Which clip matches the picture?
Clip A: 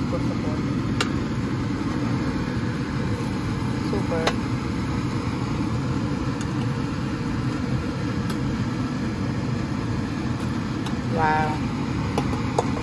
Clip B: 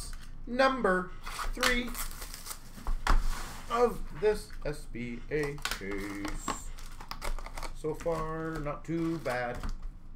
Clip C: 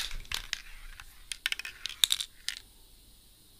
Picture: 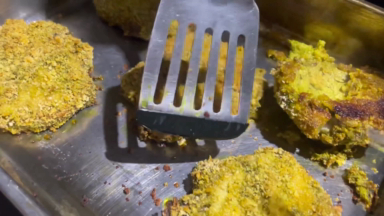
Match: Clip A